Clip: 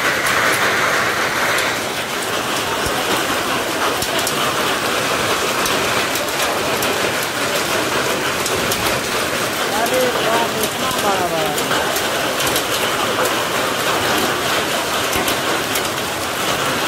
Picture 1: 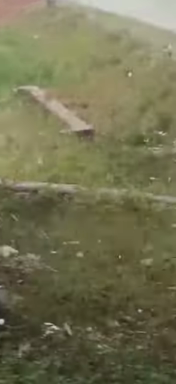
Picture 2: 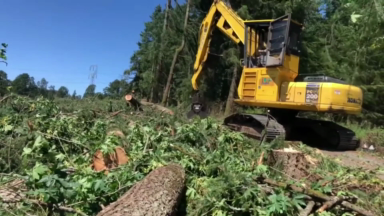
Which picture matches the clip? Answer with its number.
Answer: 1